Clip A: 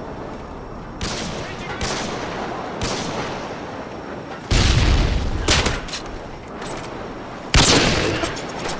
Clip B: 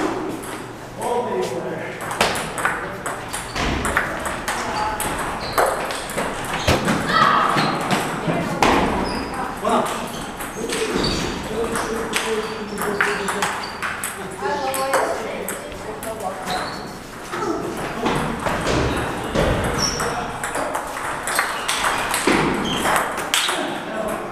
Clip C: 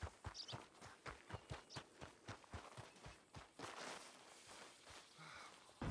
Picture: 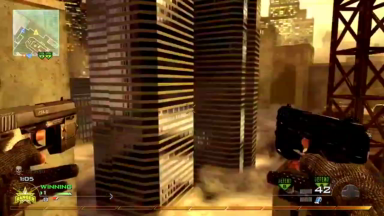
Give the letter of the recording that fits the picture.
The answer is A